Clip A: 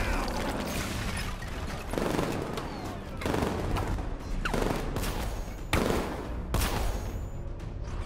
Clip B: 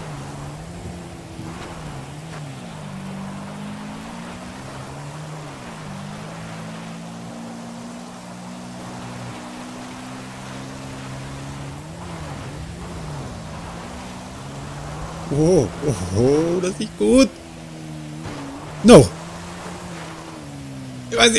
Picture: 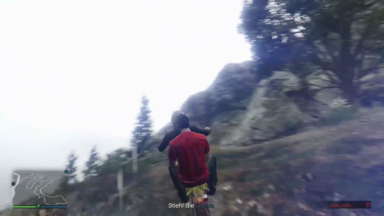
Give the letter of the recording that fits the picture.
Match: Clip B